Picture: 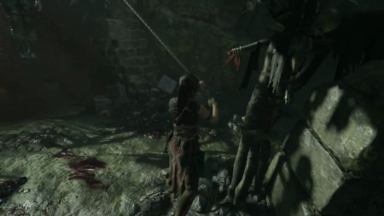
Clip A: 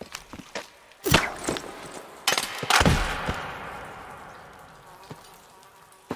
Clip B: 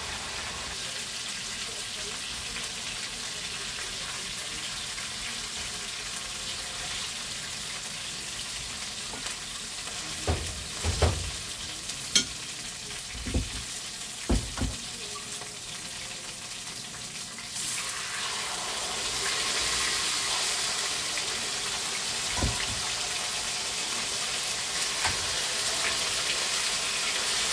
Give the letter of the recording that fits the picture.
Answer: A